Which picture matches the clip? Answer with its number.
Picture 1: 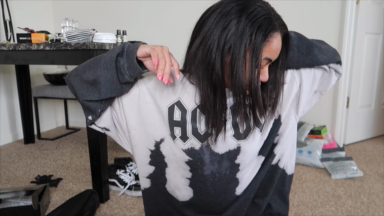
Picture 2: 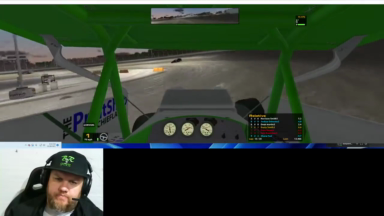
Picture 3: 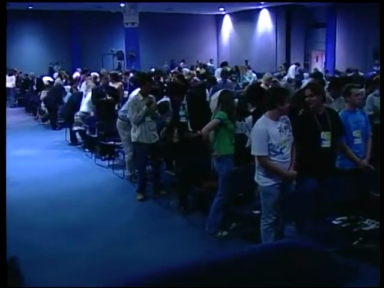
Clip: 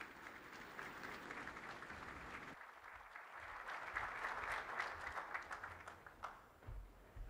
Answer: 3